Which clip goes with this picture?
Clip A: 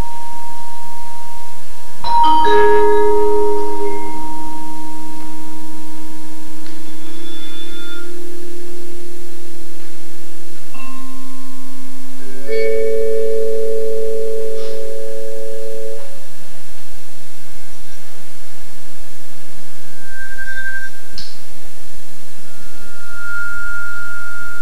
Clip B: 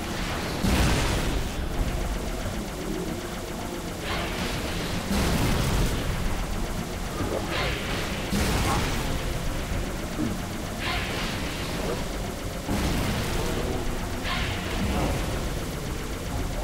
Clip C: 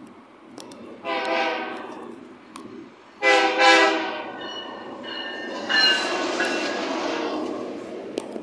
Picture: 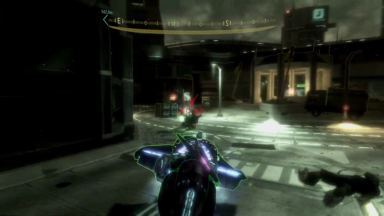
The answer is B